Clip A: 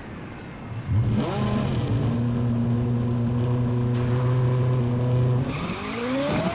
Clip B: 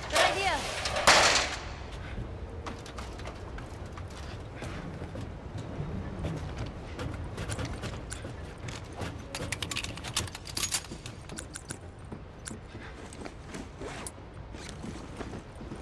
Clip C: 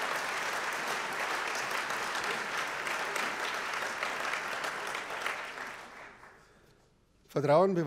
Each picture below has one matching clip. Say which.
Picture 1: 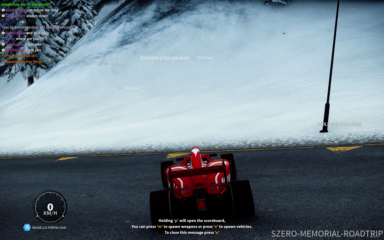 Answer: A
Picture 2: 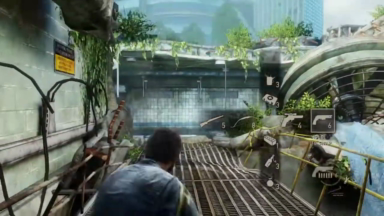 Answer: B